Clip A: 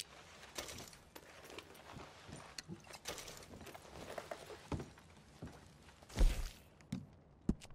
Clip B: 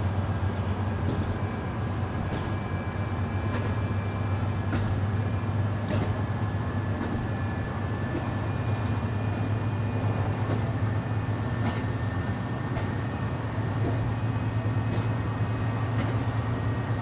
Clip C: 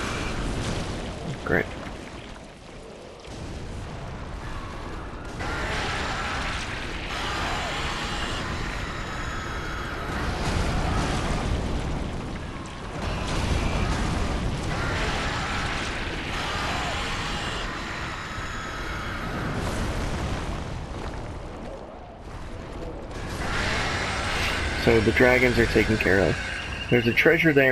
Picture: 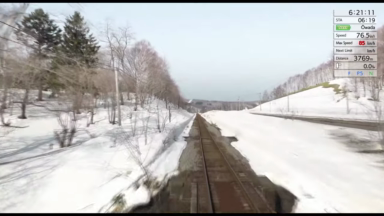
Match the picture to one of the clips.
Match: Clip B